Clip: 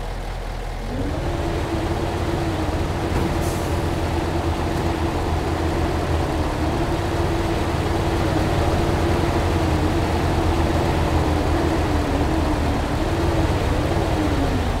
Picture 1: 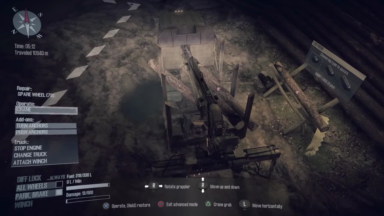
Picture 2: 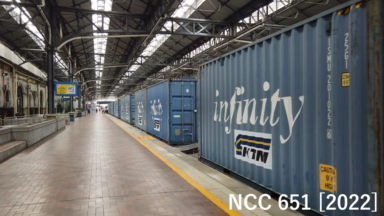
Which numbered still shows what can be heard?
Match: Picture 1